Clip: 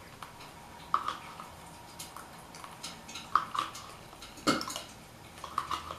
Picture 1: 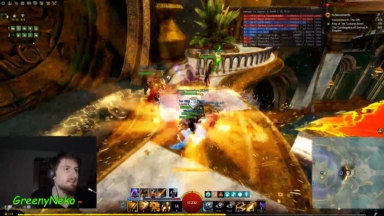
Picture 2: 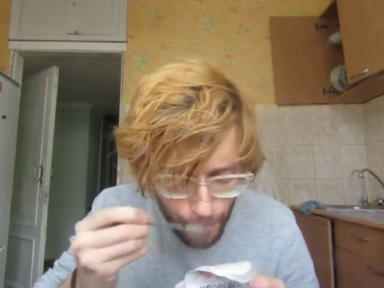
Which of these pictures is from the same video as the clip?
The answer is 2